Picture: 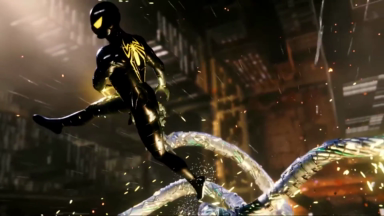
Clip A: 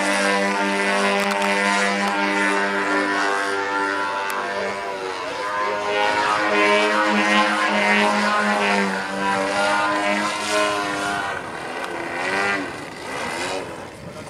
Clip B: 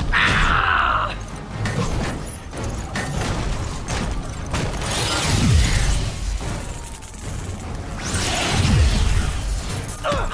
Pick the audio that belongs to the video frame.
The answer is B